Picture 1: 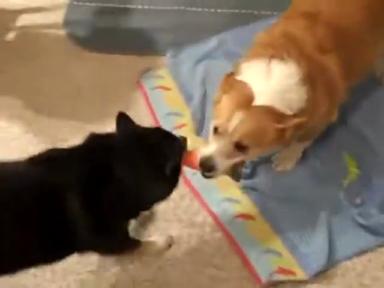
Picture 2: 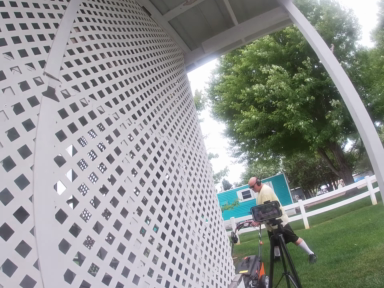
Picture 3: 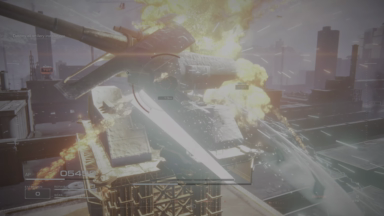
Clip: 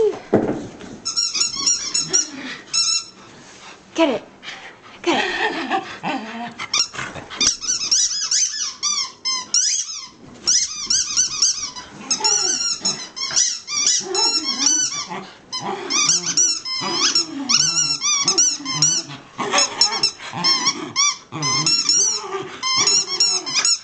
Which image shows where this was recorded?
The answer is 1